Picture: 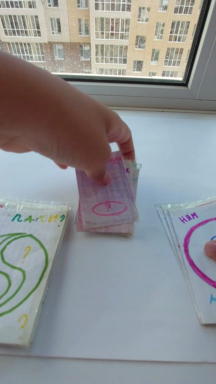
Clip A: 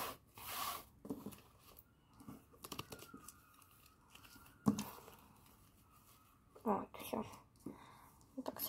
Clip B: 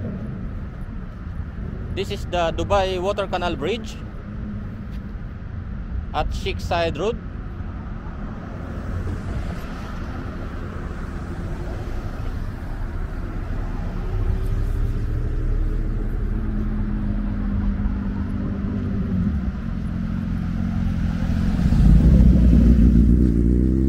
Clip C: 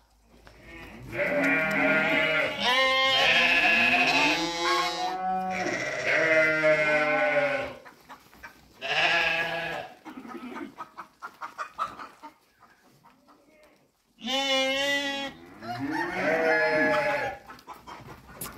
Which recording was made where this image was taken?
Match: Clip A